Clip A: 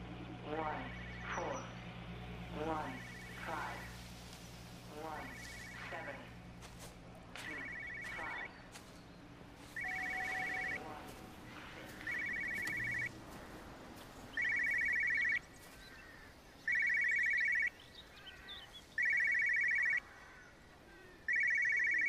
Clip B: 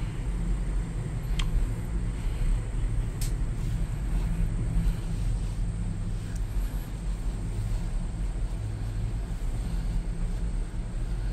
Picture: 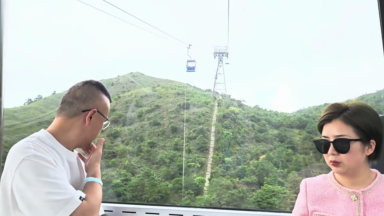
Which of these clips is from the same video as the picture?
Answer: B